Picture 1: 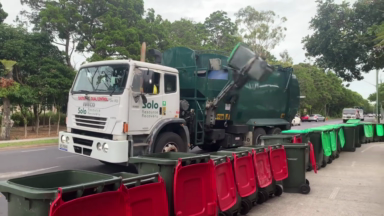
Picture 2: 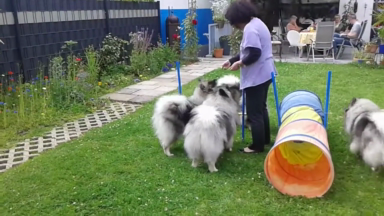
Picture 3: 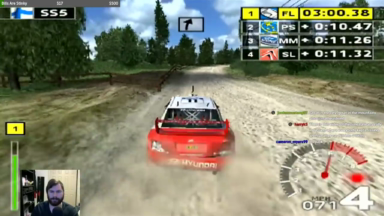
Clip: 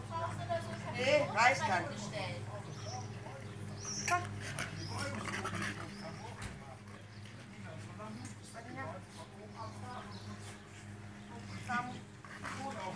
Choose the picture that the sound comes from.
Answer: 2